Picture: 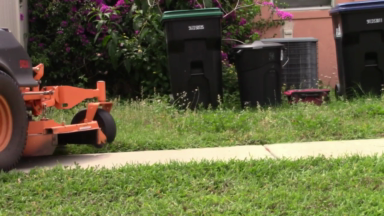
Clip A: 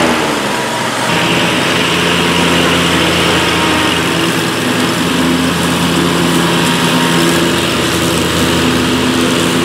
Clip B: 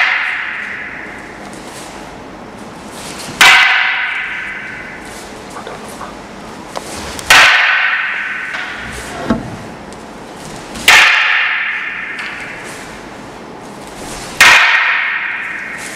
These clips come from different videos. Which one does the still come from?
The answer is A